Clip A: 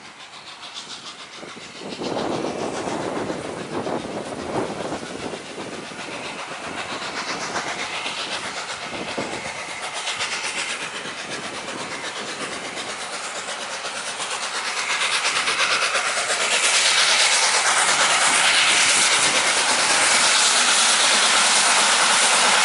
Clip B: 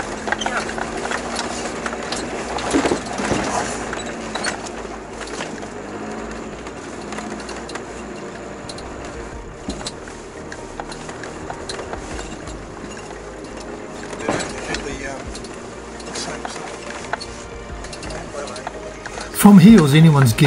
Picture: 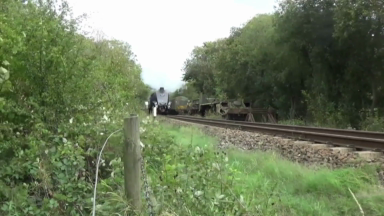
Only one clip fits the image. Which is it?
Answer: A